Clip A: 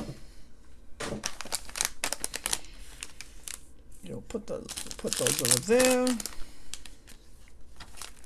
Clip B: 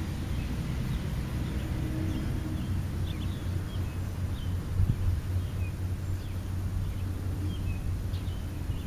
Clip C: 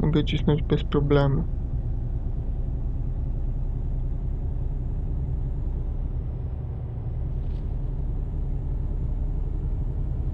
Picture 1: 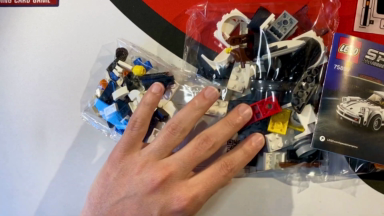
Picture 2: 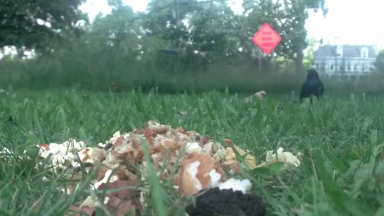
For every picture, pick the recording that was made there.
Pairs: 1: A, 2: B